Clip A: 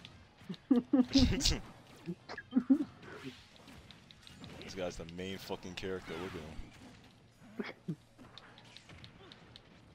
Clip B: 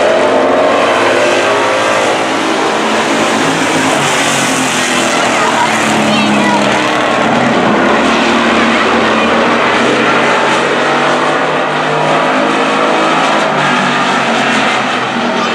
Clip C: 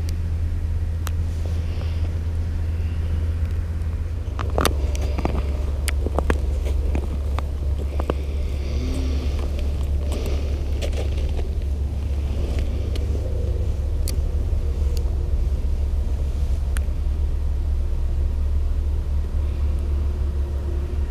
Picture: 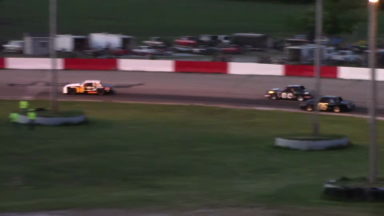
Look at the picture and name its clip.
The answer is B